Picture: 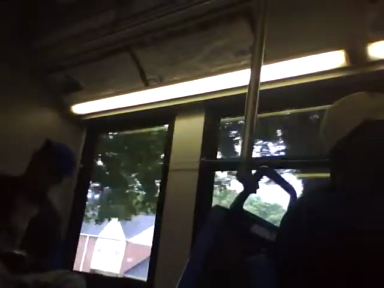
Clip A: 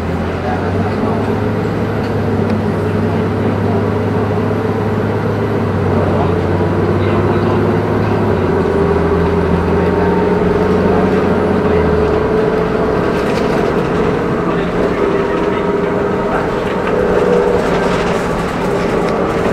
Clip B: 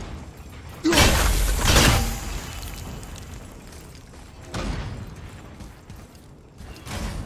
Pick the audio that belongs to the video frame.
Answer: A